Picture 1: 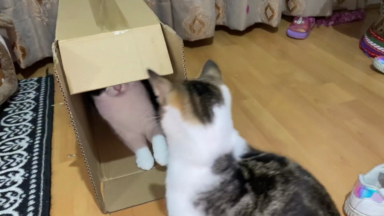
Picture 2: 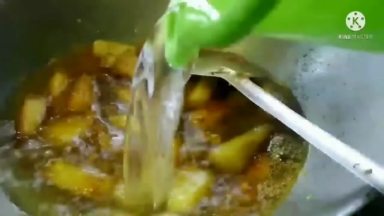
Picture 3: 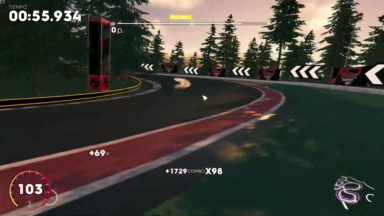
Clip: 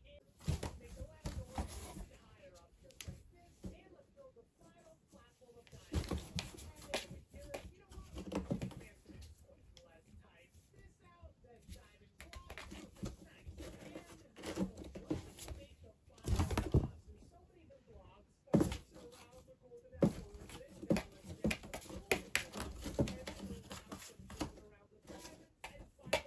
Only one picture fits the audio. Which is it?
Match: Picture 1